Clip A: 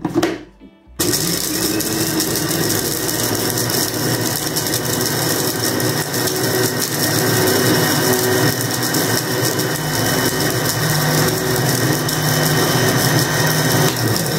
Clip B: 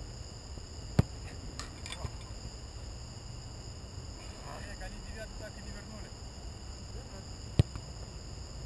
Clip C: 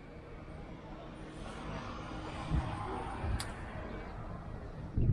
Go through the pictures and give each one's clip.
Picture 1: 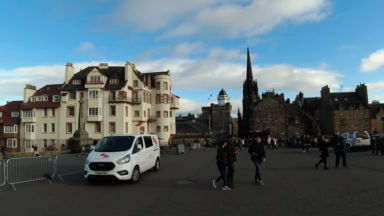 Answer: C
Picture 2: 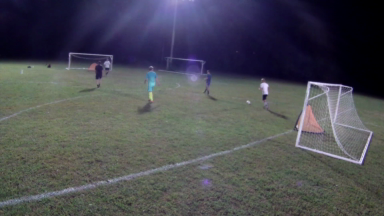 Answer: B